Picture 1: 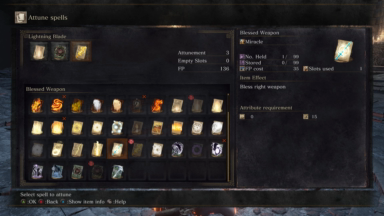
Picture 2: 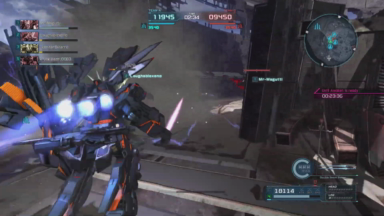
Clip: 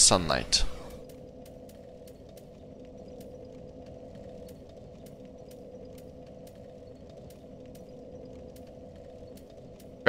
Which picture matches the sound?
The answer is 1